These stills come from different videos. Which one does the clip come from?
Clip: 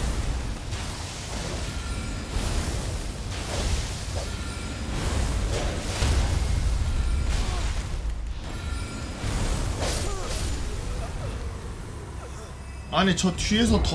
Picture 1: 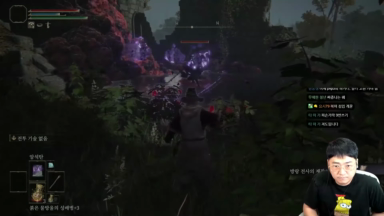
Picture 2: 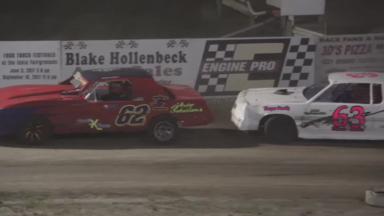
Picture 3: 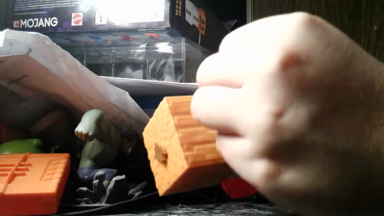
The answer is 1